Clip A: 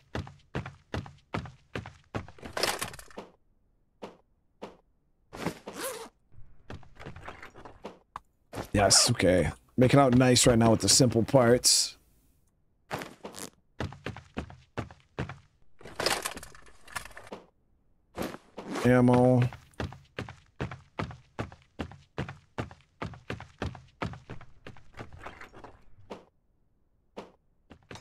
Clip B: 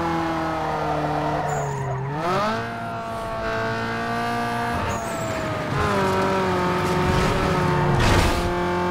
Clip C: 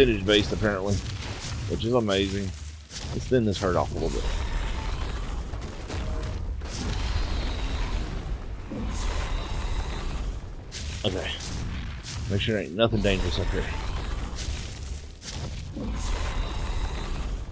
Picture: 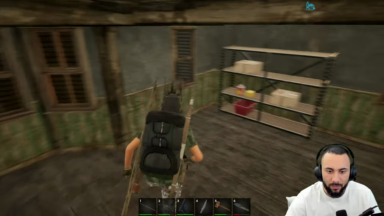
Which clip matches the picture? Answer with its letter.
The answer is A